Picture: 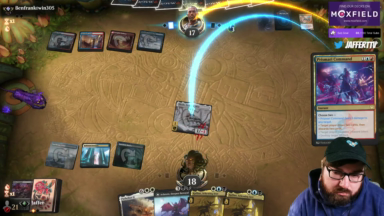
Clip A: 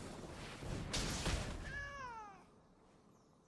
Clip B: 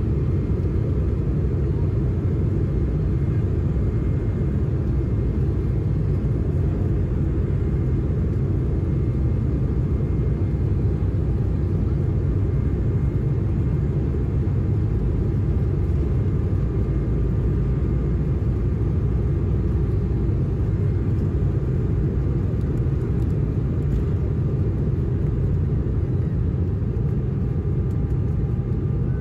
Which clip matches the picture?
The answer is A